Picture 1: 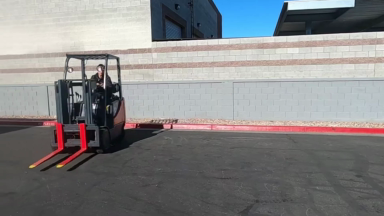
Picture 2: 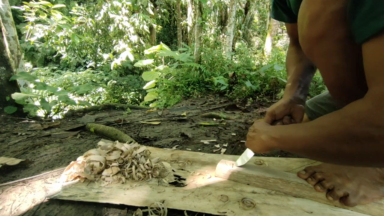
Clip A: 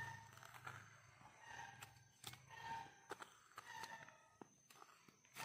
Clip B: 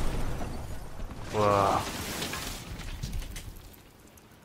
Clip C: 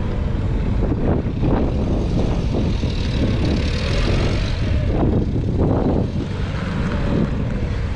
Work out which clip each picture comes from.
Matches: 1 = C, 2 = A